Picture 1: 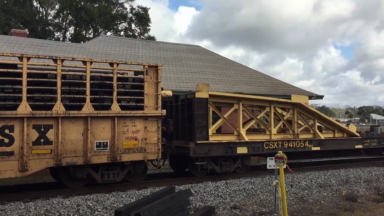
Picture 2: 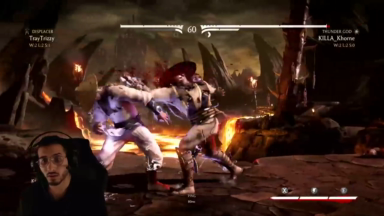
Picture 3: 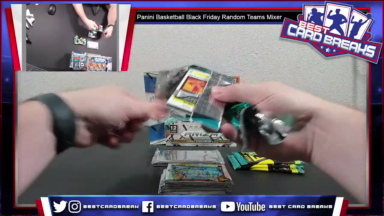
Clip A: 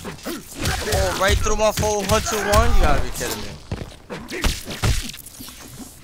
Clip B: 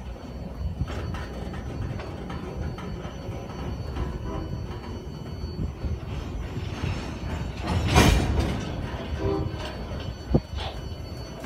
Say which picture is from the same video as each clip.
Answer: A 2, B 1